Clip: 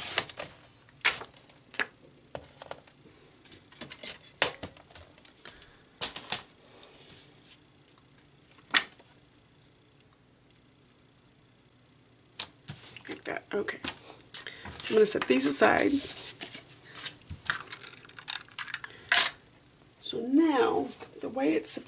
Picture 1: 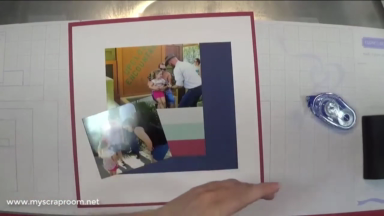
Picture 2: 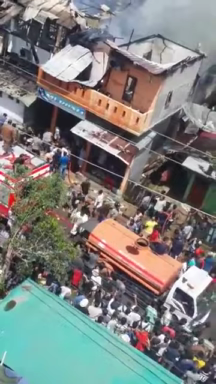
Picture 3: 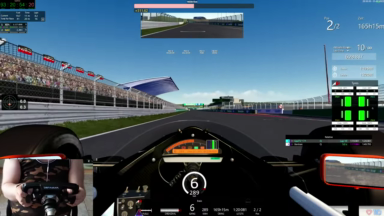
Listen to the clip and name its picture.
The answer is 1